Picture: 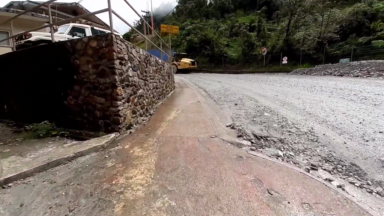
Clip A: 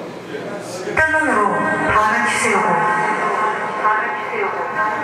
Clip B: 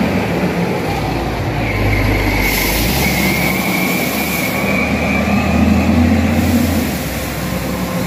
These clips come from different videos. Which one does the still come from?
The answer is B